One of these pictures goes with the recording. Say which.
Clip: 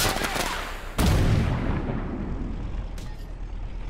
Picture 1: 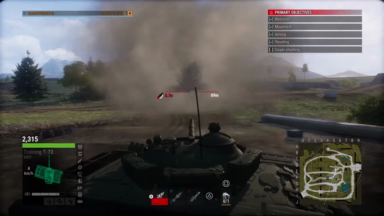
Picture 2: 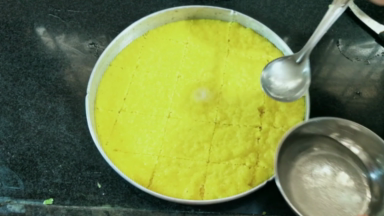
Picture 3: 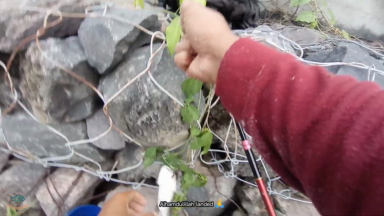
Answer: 1